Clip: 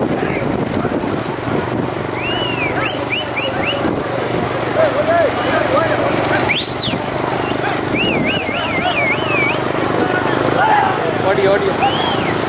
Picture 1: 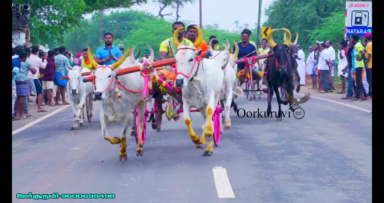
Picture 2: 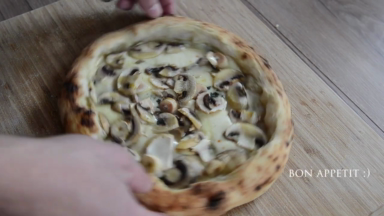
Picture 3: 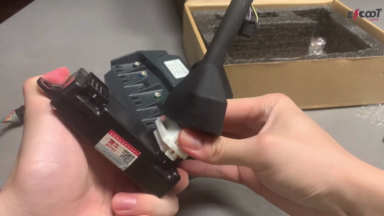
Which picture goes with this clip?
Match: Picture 1